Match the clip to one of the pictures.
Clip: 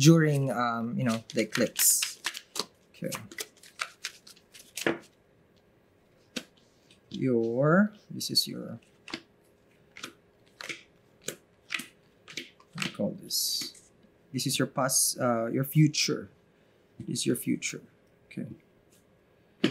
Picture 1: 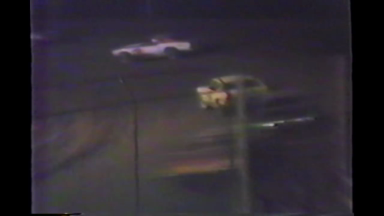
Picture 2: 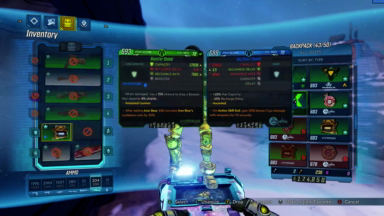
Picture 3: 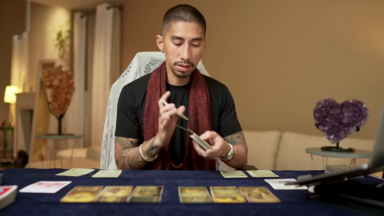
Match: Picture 3